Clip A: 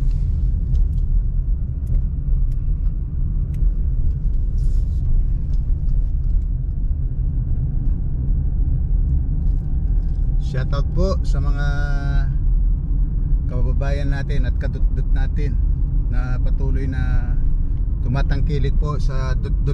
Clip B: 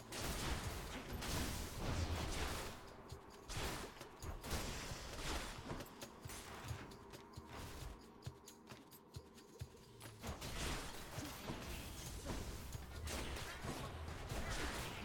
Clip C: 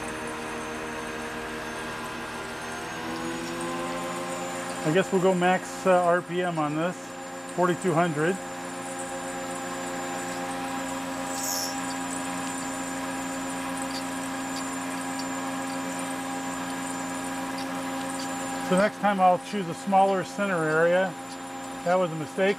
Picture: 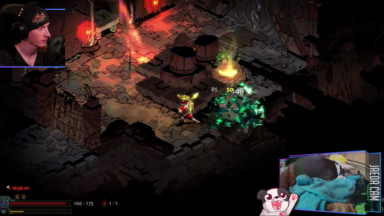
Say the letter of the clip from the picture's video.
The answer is B